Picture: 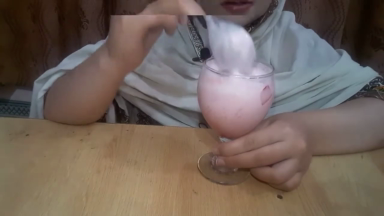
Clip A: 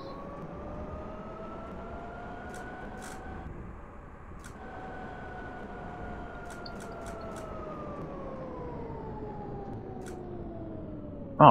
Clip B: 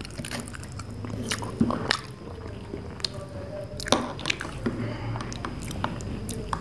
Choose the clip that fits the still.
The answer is B